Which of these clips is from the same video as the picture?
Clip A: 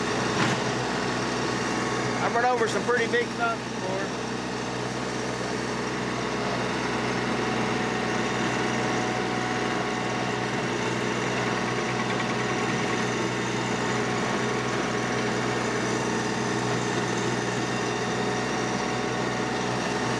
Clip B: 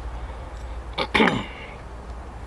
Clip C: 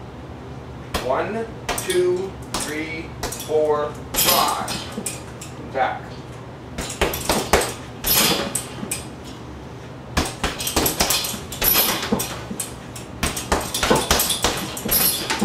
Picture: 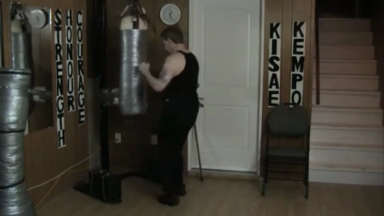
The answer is C